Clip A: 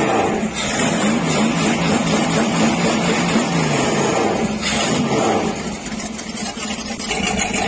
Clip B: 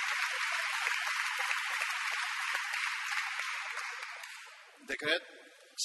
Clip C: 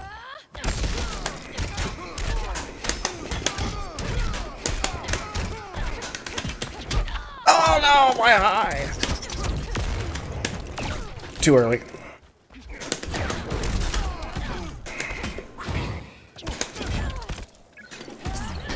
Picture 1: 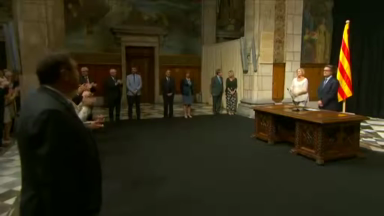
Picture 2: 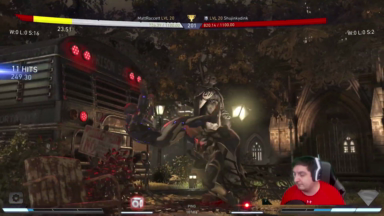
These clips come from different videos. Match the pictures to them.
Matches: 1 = B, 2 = C